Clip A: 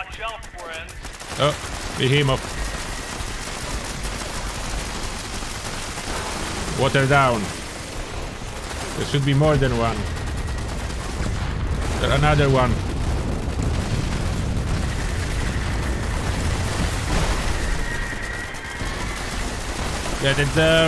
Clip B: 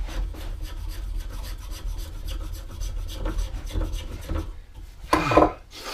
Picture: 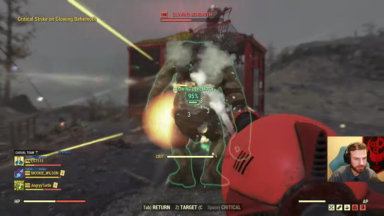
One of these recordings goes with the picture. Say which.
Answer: A